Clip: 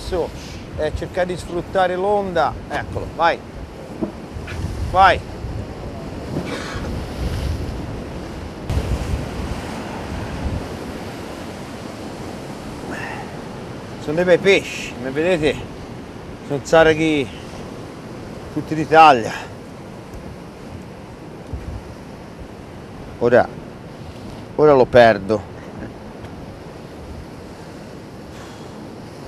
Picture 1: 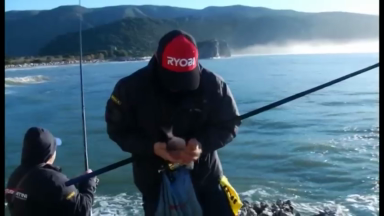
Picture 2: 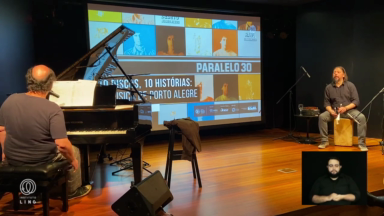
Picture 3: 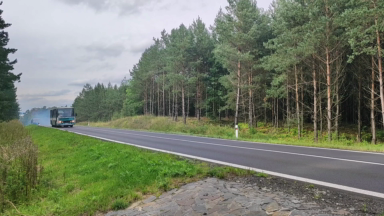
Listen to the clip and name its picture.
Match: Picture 1